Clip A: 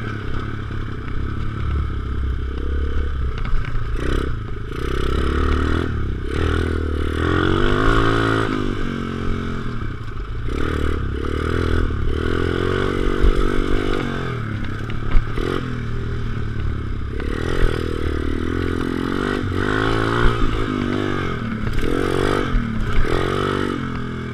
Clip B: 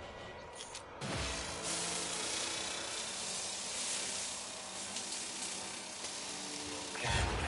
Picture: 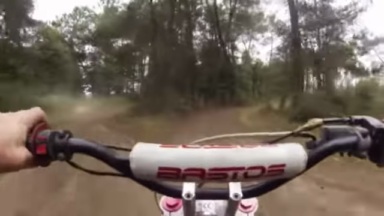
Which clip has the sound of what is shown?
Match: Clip A